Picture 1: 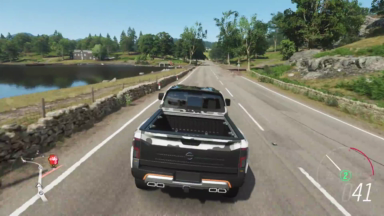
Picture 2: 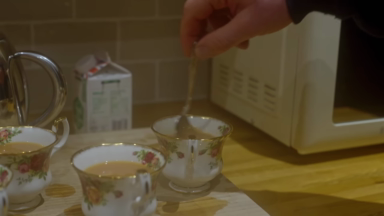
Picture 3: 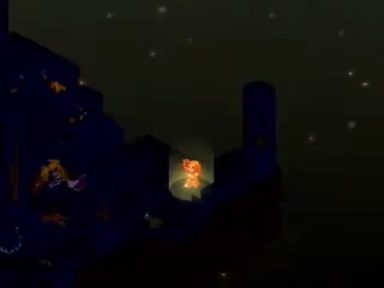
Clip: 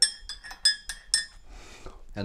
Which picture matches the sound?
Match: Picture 2